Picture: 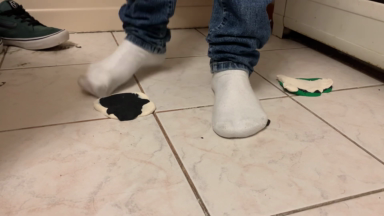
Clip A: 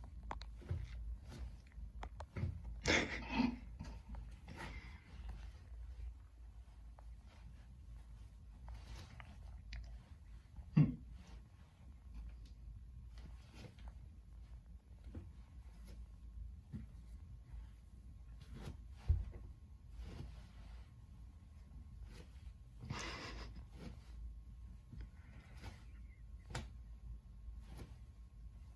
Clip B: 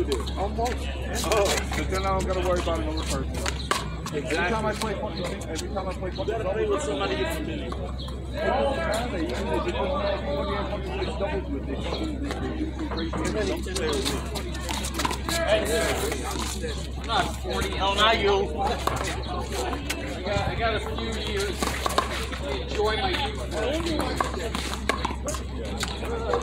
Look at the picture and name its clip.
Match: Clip A